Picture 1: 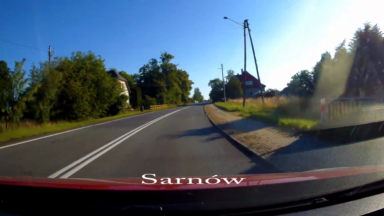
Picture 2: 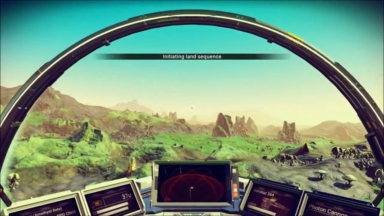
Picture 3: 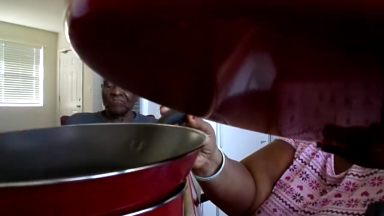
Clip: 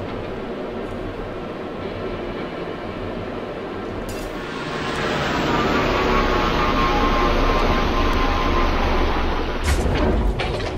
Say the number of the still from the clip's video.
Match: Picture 2